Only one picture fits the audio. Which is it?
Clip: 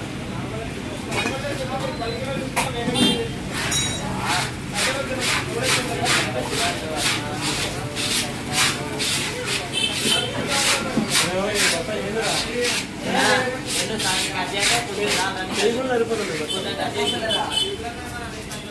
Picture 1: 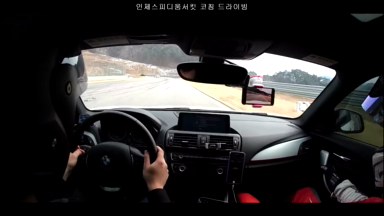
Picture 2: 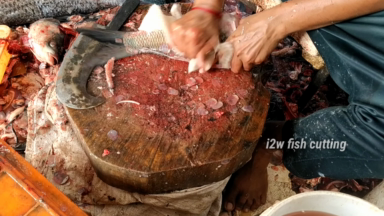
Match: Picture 2